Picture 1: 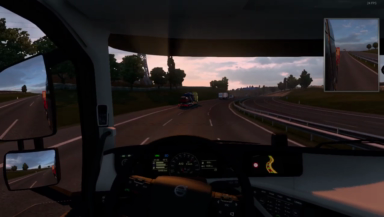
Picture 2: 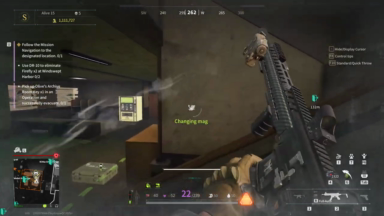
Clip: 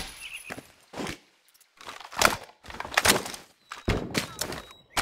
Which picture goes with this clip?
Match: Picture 2